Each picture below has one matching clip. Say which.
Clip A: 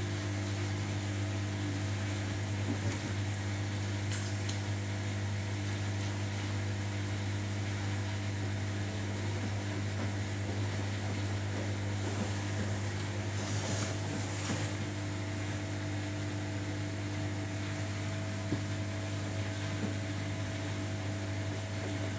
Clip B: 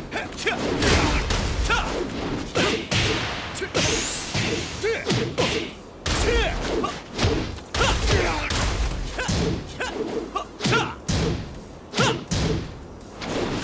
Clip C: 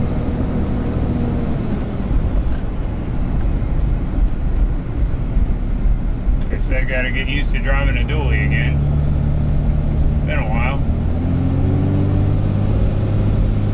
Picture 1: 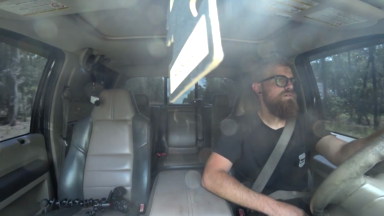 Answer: C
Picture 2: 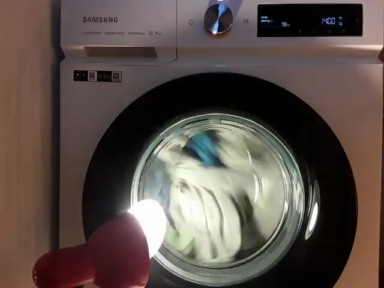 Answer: A